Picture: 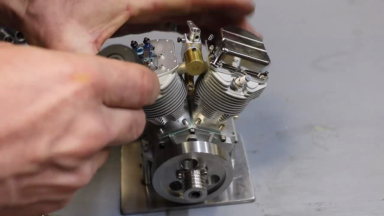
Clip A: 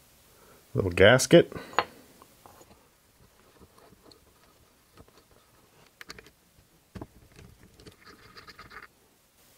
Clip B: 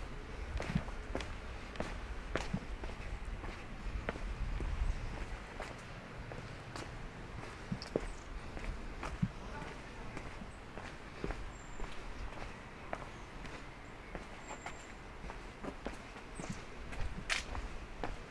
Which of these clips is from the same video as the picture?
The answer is A